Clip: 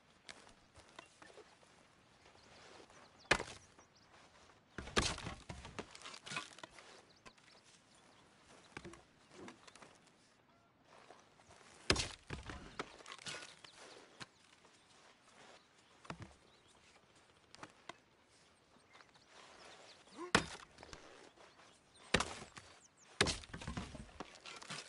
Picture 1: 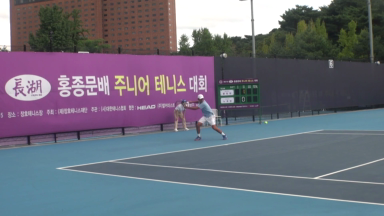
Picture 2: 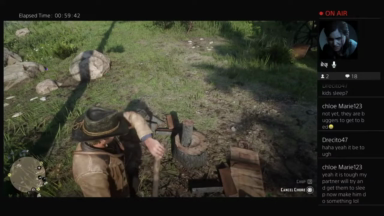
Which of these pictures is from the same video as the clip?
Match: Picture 2